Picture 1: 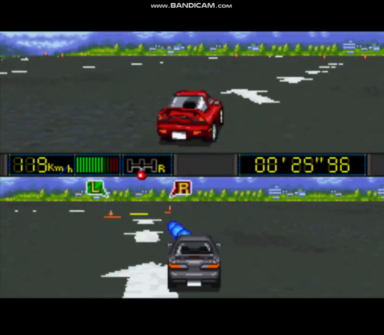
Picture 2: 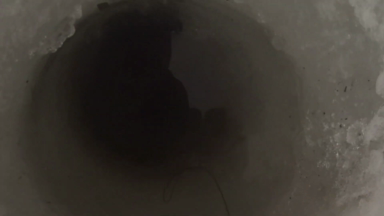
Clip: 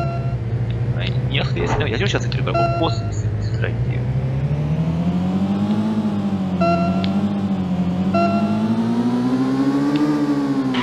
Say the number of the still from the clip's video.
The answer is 1